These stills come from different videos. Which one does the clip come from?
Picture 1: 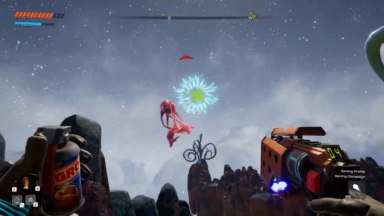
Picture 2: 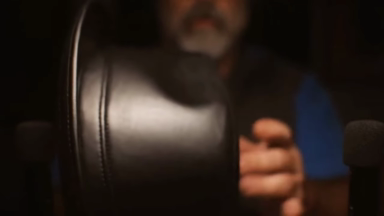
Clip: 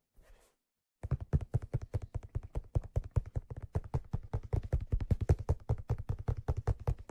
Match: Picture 2